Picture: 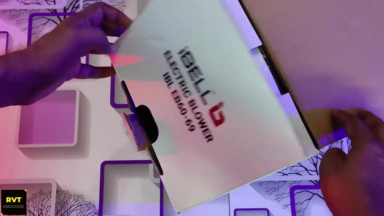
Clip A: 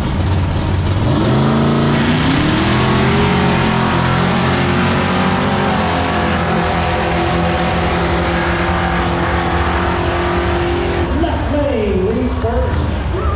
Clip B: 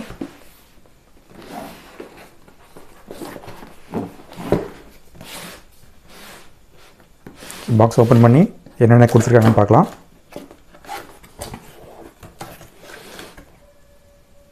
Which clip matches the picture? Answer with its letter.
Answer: B